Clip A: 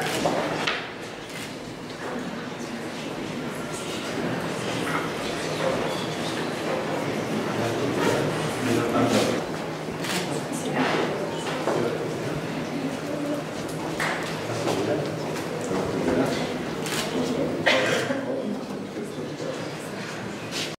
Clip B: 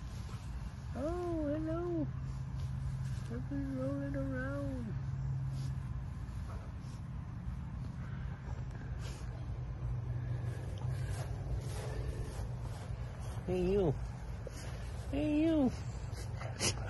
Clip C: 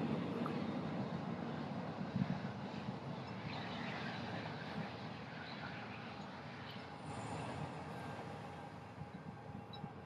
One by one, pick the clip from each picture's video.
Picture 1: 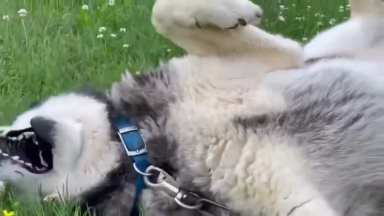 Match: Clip B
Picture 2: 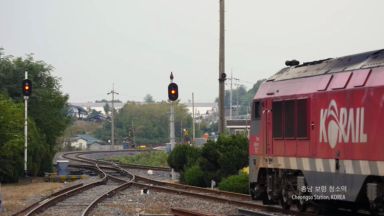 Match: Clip C